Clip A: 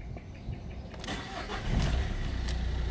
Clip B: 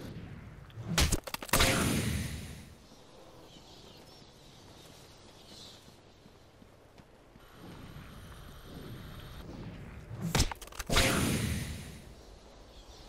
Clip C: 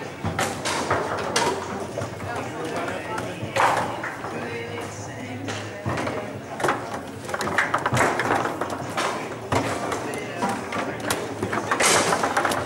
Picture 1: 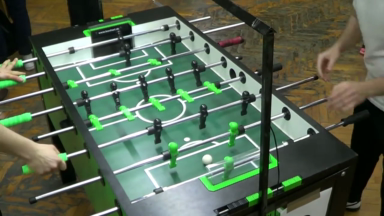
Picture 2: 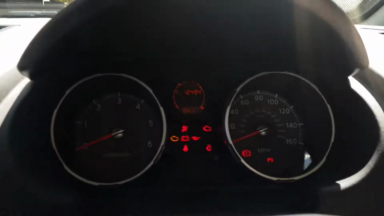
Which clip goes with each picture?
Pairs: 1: C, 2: A